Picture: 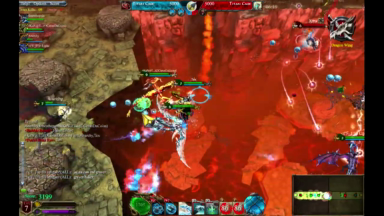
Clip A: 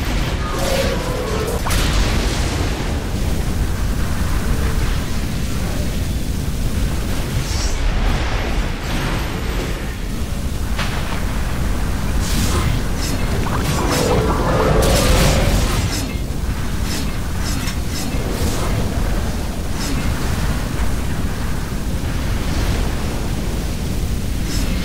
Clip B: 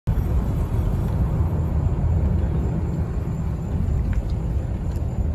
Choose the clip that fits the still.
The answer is A